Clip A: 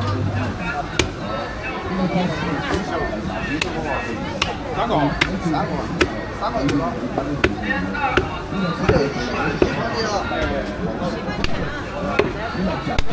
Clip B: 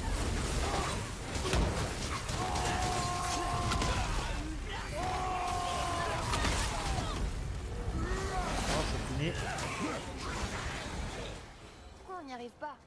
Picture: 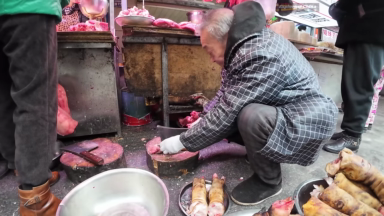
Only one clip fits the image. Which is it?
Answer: A